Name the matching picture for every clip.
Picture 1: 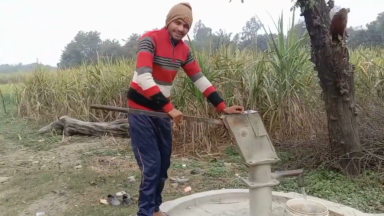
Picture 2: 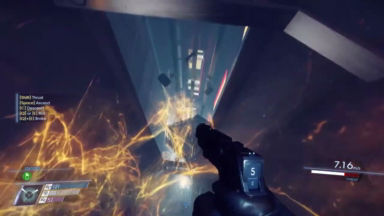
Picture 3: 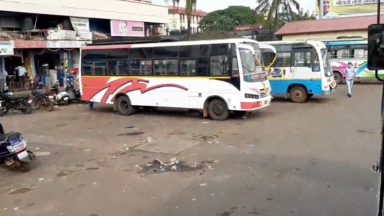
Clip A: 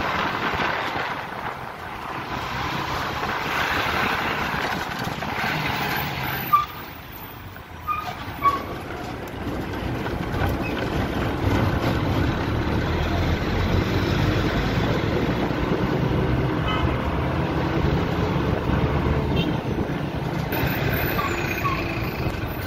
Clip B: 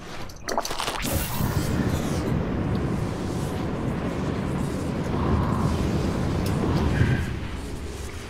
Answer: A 3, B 2